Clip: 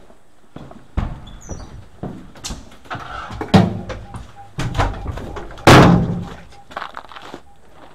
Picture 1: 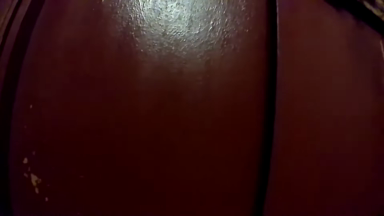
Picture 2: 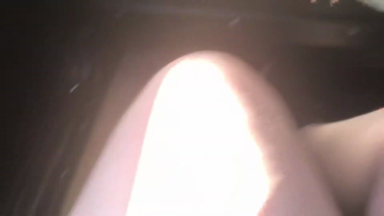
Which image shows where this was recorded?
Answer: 1